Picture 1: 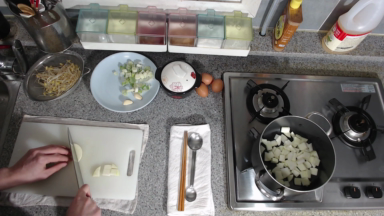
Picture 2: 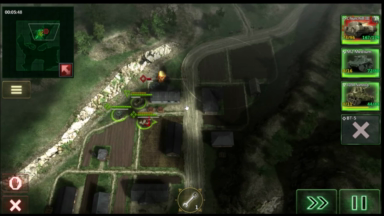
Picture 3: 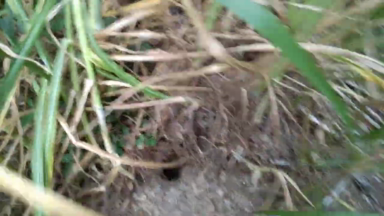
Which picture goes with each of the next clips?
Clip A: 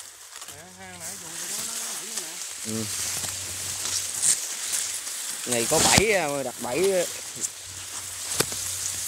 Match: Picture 3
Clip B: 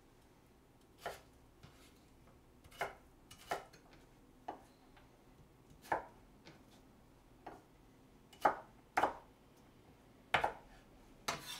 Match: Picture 1